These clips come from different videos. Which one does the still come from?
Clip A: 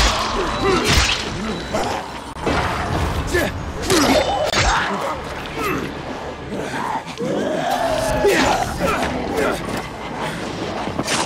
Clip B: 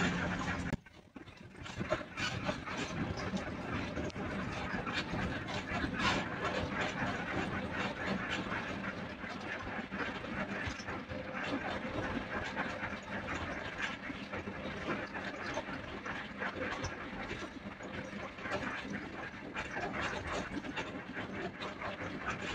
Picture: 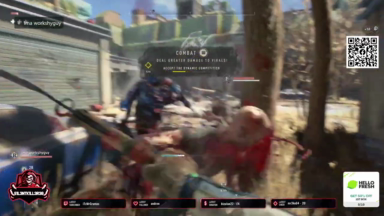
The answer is A